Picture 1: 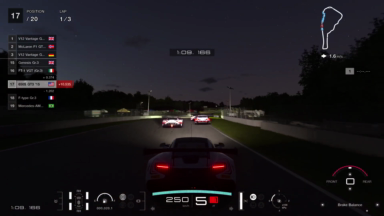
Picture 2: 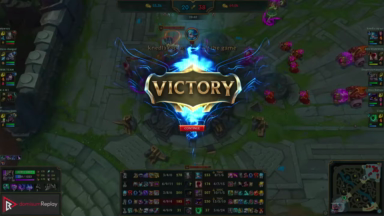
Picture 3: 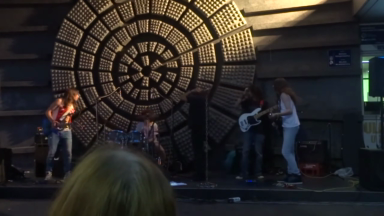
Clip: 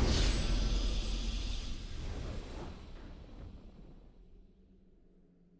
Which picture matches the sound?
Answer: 2